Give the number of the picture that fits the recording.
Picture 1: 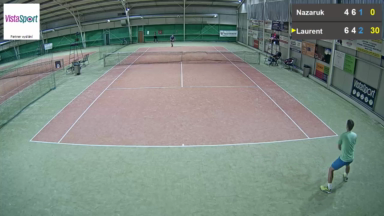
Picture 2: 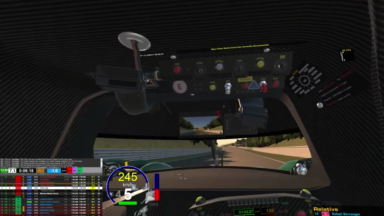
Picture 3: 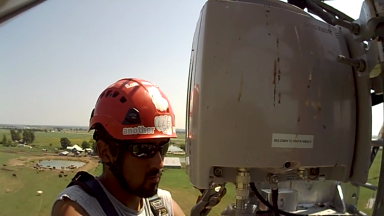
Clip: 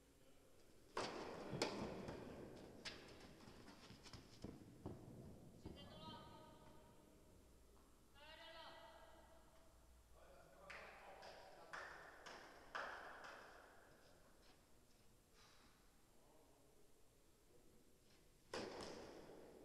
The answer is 1